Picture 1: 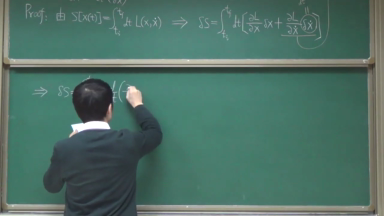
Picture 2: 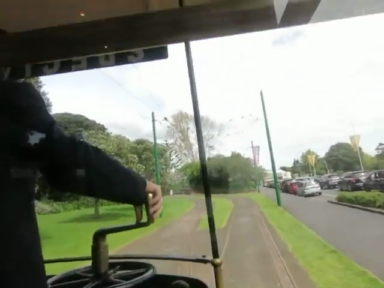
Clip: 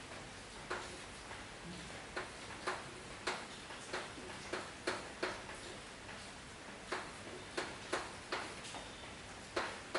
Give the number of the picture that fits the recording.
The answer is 1